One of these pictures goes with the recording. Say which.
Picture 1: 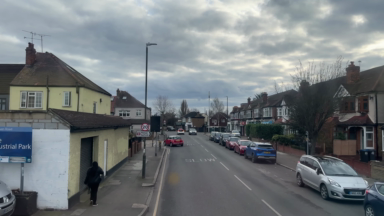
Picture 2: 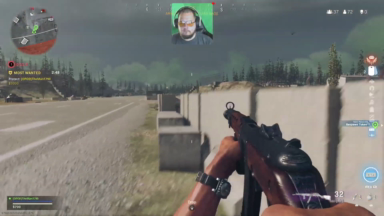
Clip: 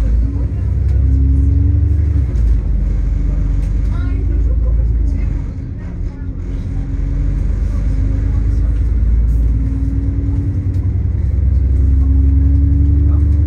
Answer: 1